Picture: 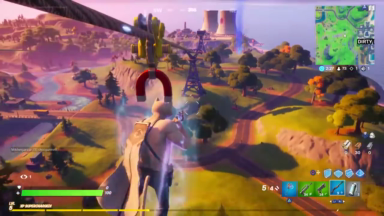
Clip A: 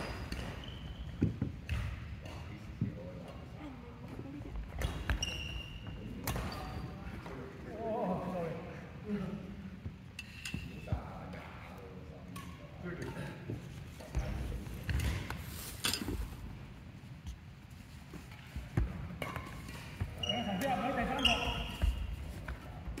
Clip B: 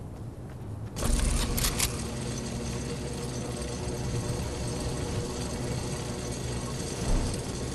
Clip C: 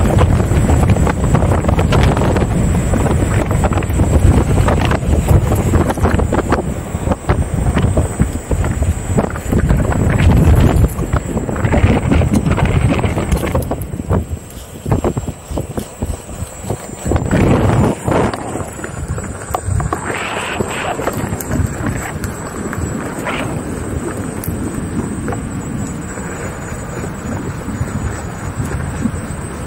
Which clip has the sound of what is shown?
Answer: B